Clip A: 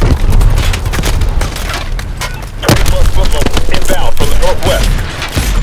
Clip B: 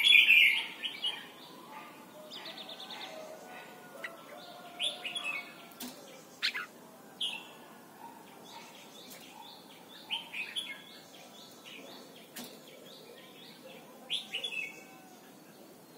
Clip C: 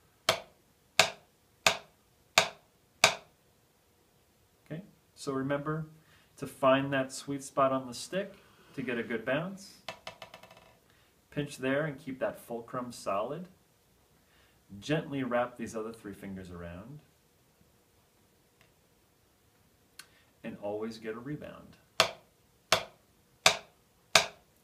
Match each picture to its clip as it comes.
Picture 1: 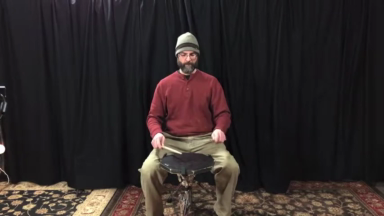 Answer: C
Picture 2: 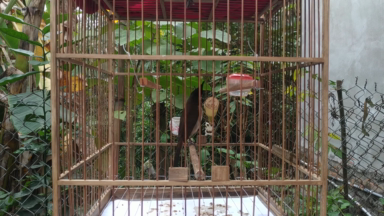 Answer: B